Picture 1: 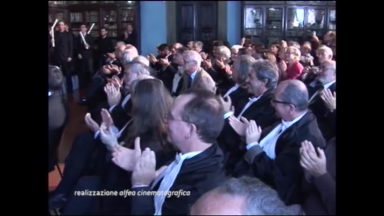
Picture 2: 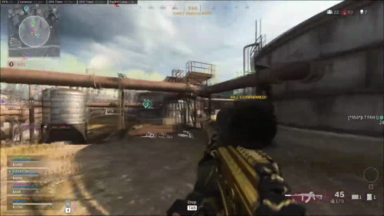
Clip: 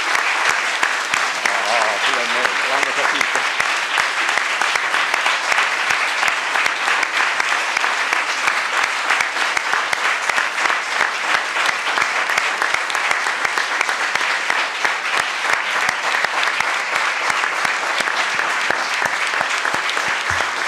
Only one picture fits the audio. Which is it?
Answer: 1